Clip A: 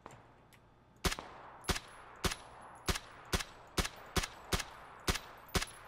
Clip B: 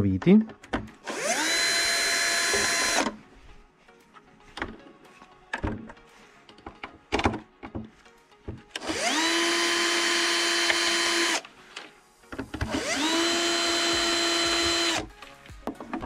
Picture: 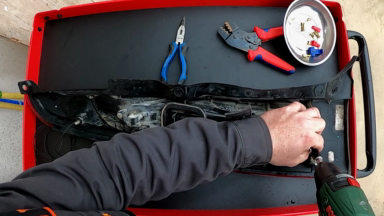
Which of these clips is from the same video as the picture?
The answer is B